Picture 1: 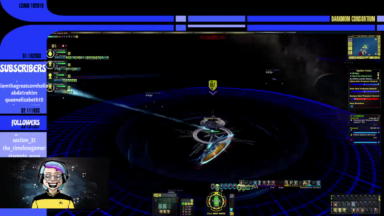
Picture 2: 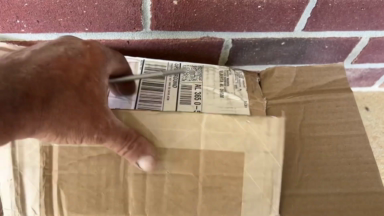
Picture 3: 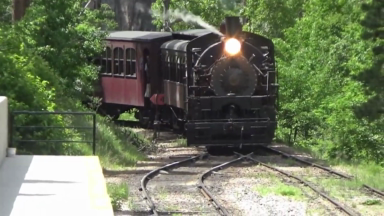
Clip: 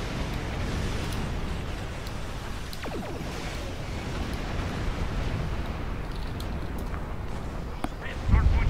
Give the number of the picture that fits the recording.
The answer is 1